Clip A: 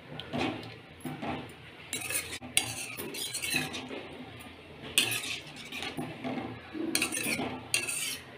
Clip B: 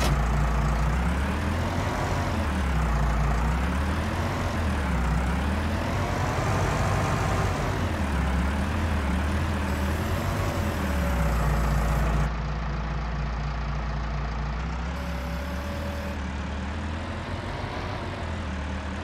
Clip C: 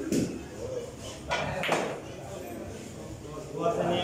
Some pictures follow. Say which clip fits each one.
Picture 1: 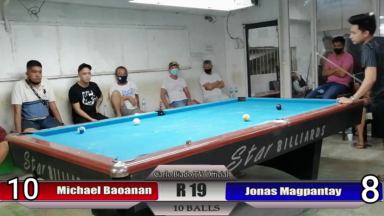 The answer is C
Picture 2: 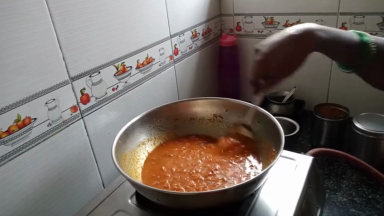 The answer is A